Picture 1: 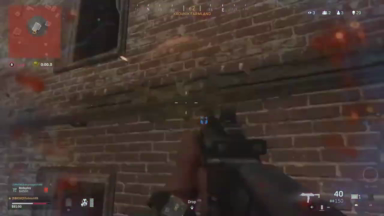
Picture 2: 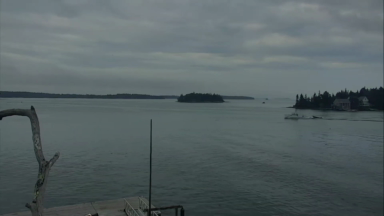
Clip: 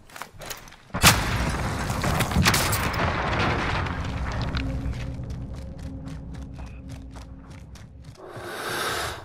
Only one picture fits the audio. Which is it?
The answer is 1